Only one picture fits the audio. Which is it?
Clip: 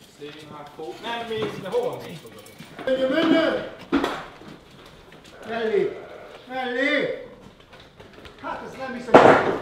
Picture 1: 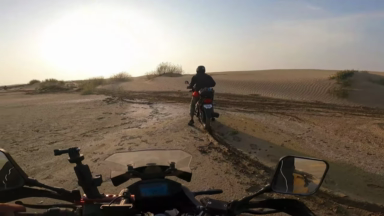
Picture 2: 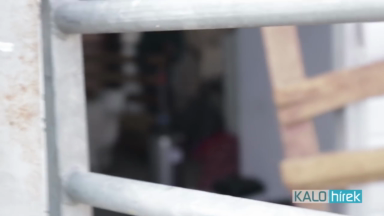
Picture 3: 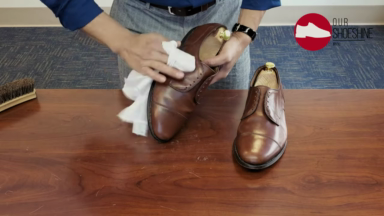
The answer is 2